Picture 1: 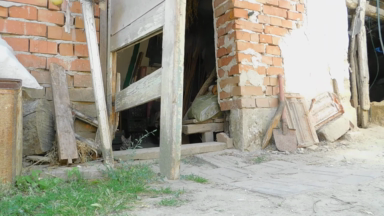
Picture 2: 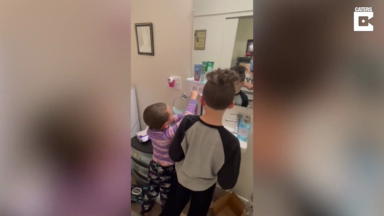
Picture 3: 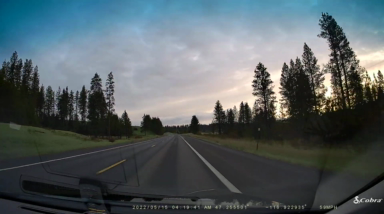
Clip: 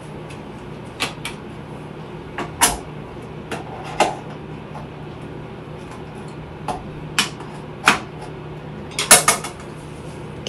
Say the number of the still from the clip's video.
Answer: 2